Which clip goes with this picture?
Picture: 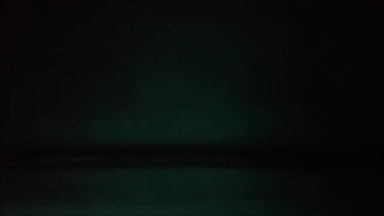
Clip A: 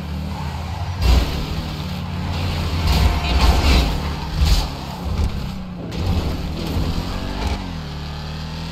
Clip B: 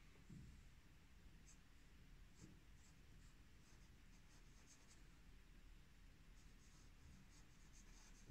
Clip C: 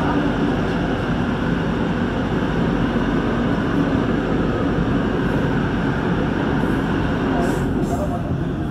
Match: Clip C